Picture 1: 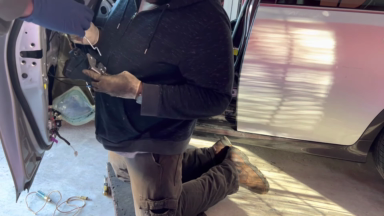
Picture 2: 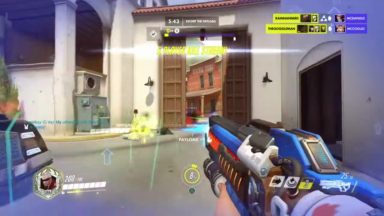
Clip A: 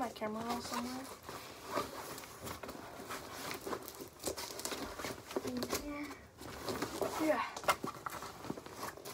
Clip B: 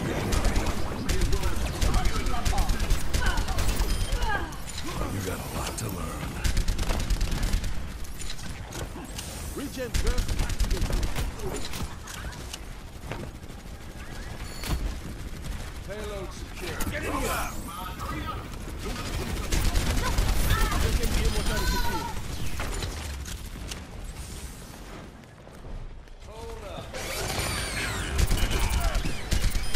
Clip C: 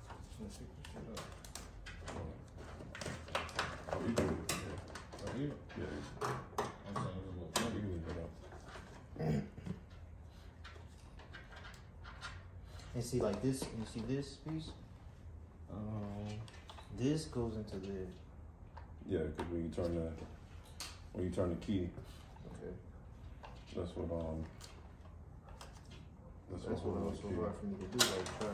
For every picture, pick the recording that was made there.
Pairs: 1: C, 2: B